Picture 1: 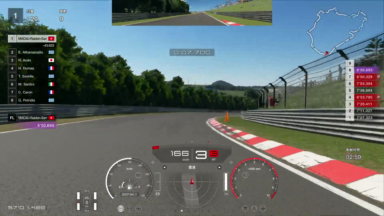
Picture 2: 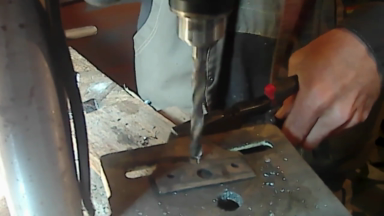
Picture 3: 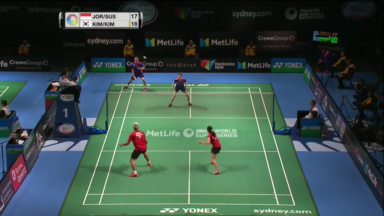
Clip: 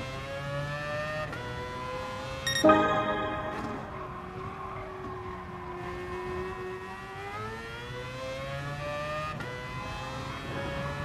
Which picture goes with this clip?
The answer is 1